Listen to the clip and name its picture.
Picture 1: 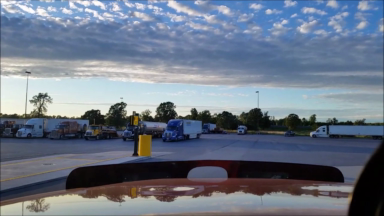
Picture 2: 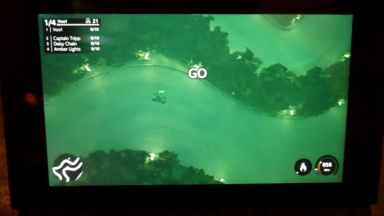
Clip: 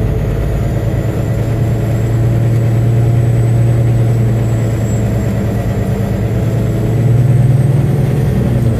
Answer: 1